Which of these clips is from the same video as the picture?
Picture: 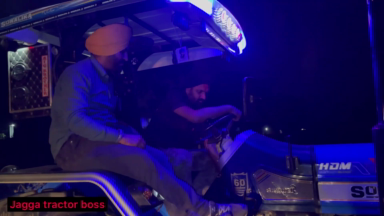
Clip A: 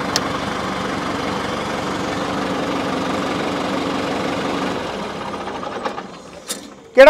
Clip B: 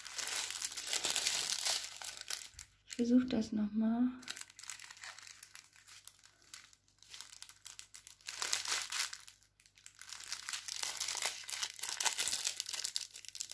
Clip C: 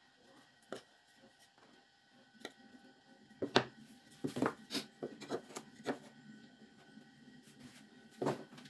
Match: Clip A